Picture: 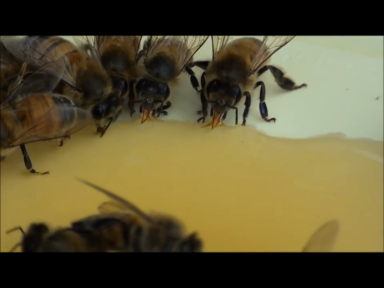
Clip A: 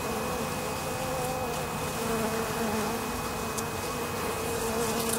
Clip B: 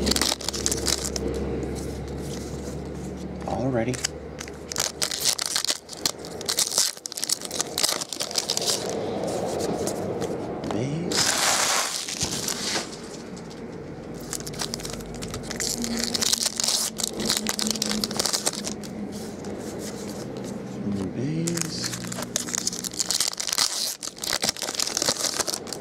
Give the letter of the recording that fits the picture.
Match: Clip A